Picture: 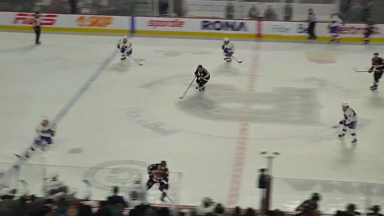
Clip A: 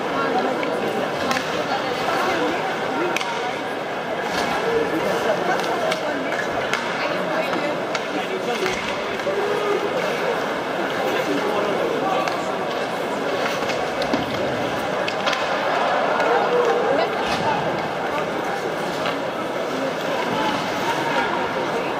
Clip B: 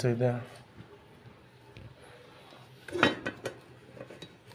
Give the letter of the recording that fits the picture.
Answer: A